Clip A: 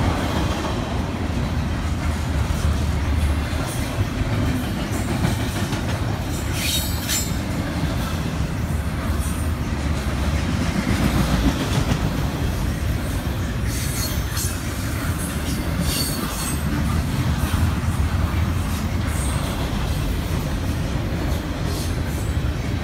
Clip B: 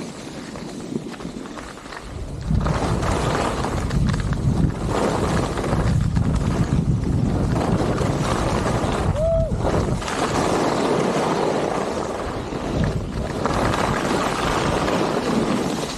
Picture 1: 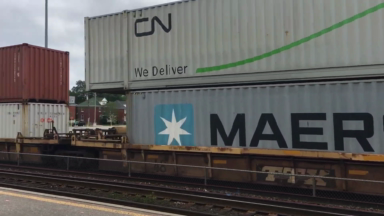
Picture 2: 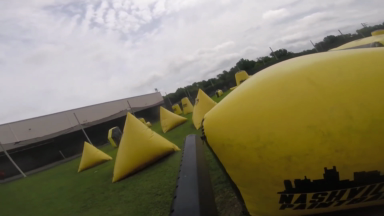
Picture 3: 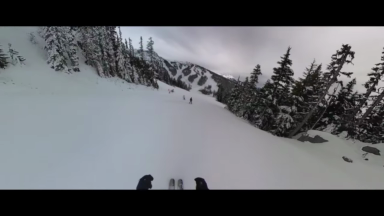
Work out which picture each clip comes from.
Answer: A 1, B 3